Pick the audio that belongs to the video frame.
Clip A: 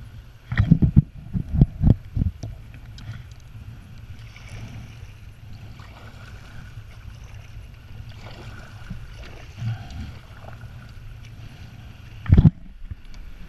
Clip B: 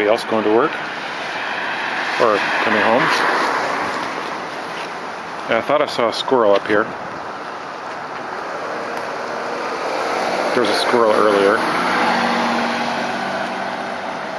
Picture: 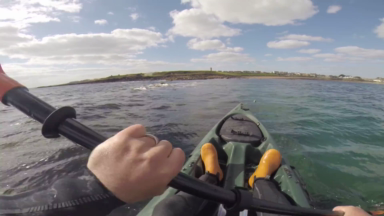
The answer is A